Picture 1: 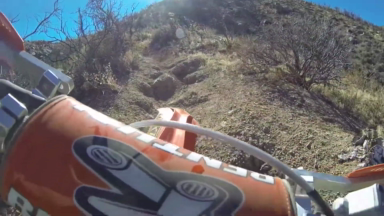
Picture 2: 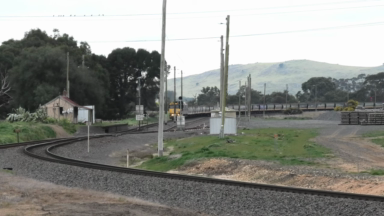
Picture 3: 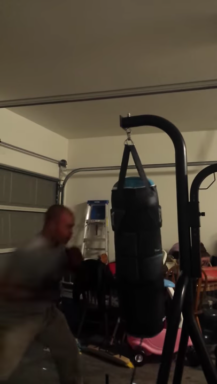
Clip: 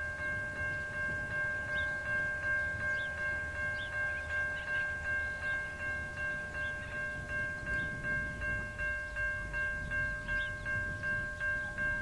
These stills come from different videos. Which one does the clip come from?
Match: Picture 2